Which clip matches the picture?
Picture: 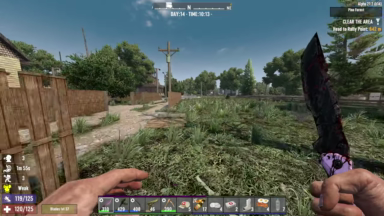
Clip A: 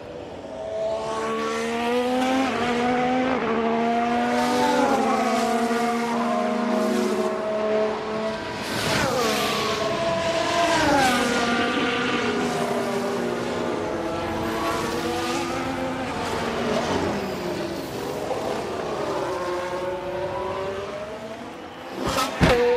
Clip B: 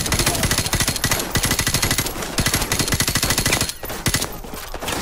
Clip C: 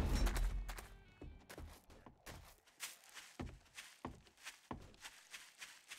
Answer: C